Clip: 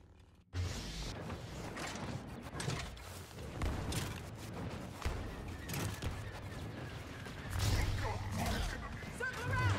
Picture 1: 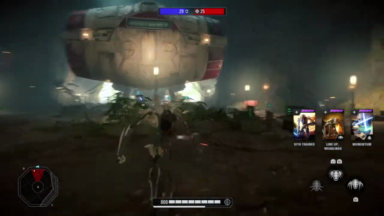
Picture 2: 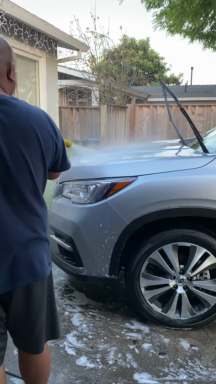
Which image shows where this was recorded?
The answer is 1